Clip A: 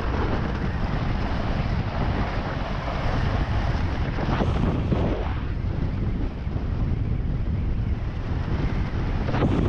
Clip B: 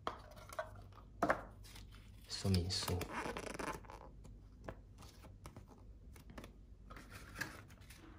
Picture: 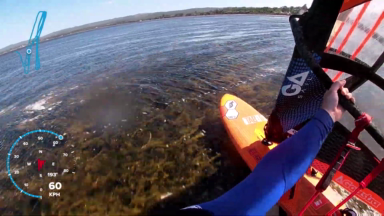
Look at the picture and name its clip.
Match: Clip A